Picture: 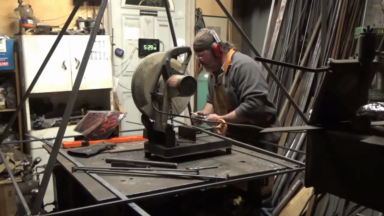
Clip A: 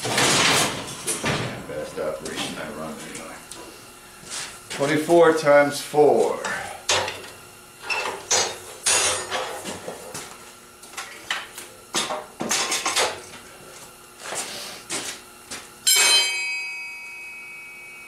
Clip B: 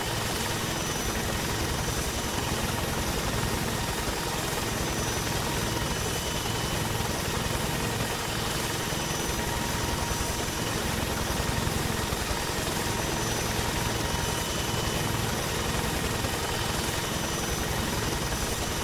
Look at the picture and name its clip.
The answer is A